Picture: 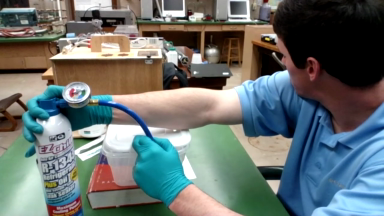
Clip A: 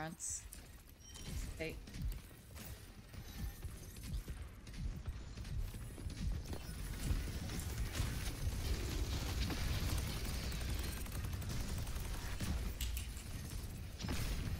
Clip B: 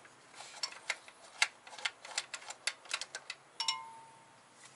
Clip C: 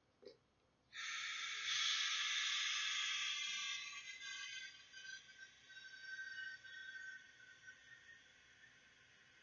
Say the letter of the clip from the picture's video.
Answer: C